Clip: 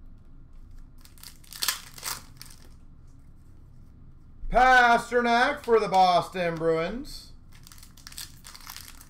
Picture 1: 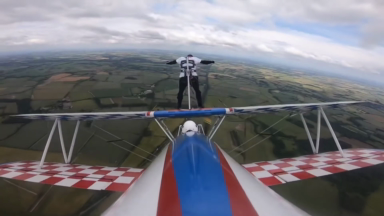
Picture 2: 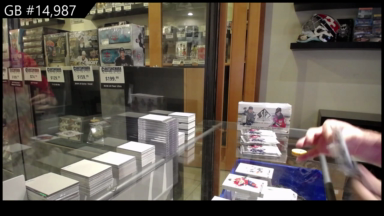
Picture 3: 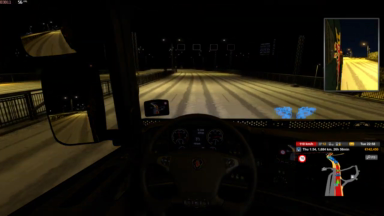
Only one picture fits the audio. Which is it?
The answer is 2